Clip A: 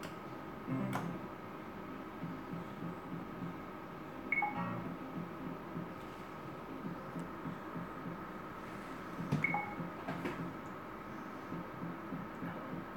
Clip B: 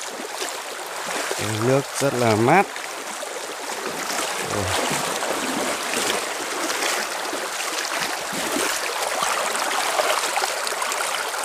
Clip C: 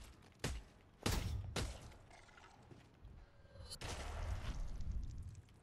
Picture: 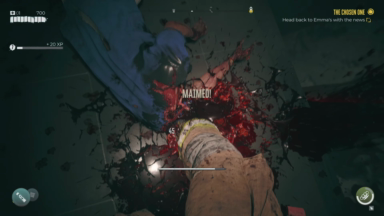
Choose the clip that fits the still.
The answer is C